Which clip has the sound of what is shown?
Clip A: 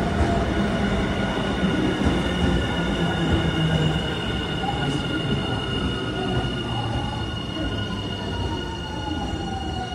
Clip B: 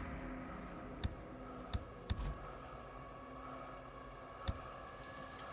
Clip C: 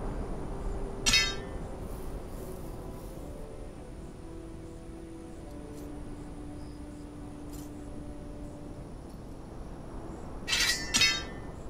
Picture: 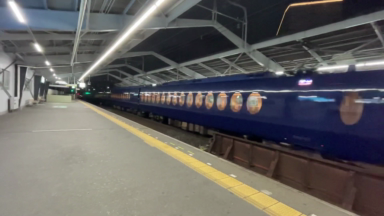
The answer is A